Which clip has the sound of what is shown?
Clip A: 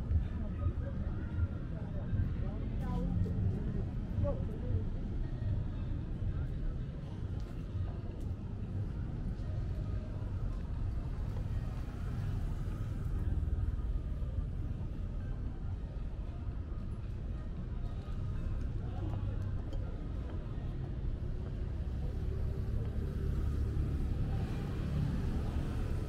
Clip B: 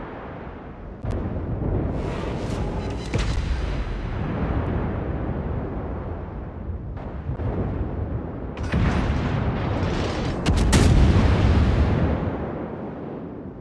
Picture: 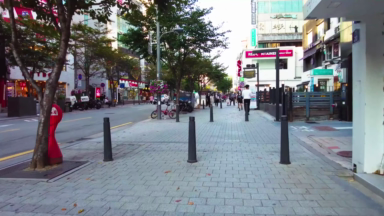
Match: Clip A